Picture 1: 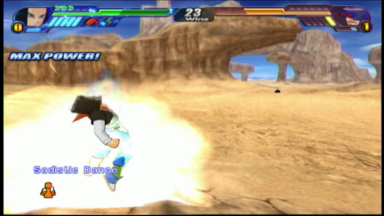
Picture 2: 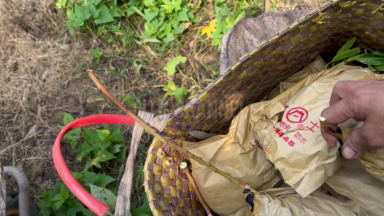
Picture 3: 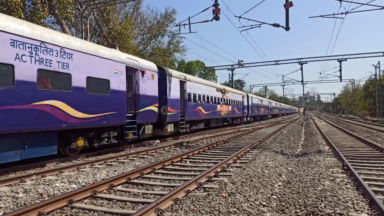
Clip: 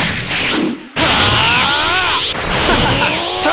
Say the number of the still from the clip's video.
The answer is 1